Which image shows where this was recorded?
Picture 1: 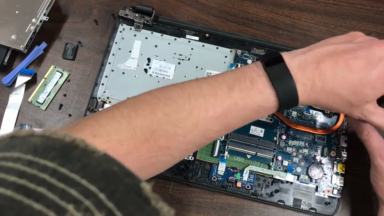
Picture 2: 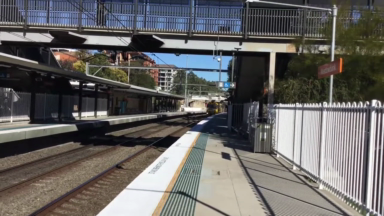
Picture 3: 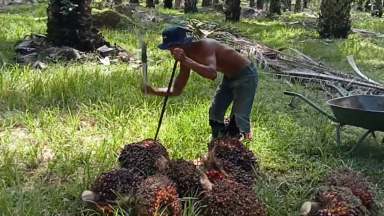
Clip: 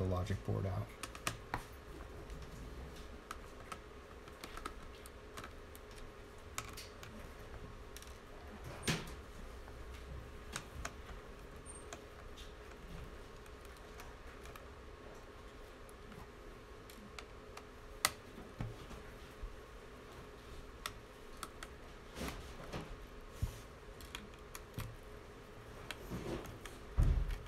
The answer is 1